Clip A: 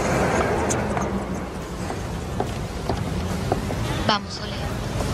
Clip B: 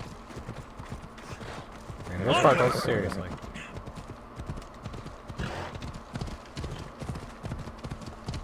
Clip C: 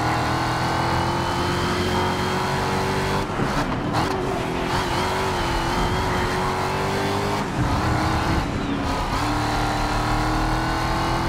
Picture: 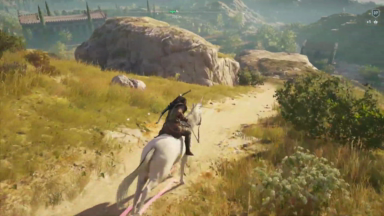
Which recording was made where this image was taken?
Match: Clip B